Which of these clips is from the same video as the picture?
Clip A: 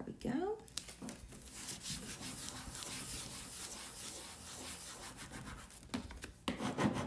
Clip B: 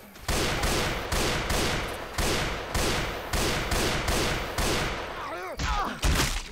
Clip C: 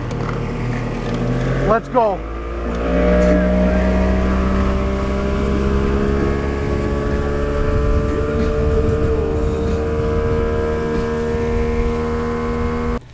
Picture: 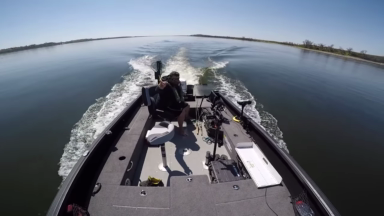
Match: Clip C